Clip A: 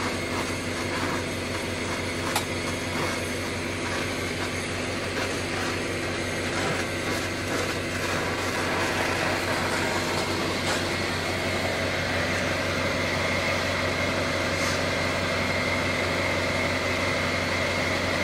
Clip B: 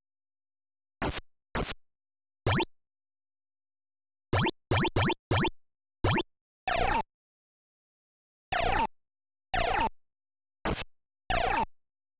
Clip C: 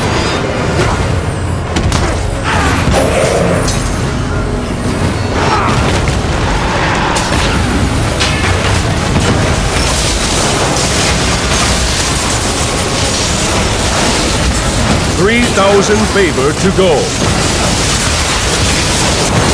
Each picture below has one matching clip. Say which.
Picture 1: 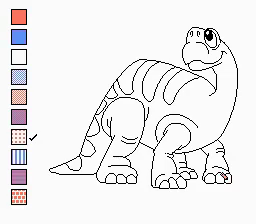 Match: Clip B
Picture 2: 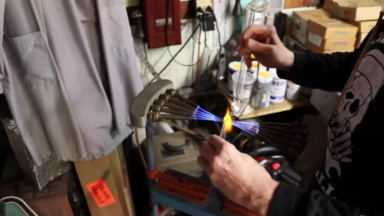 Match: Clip A